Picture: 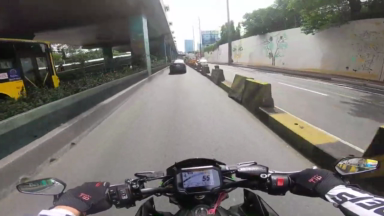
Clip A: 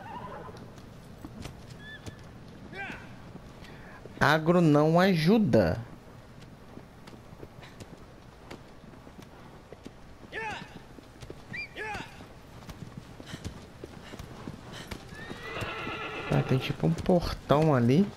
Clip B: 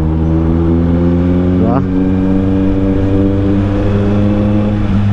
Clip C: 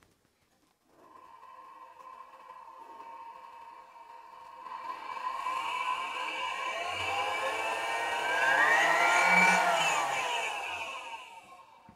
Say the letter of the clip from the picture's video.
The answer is B